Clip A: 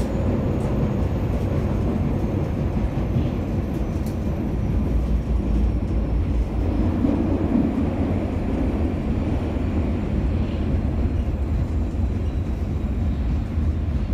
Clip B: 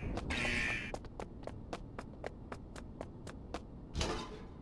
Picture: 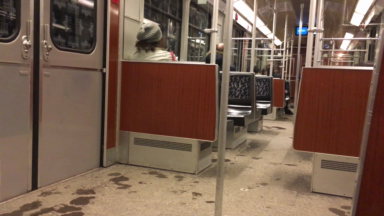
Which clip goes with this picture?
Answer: A